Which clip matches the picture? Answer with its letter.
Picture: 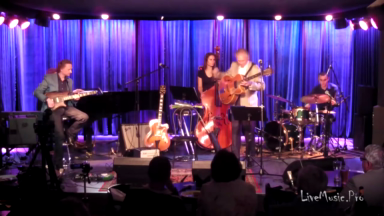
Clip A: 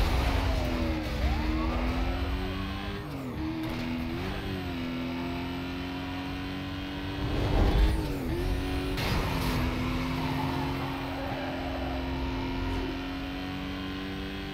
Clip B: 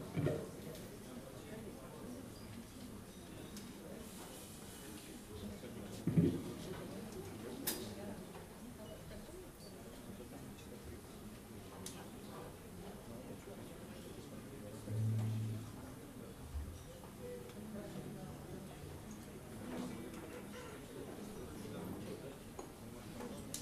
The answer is B